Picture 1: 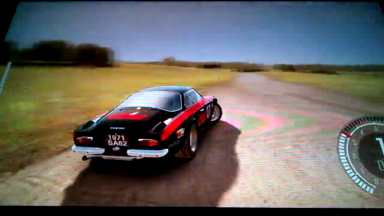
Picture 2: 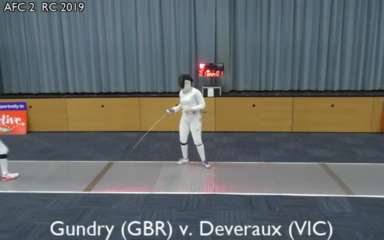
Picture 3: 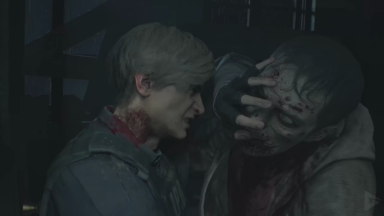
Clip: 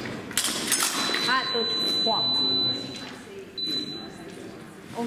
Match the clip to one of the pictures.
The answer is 2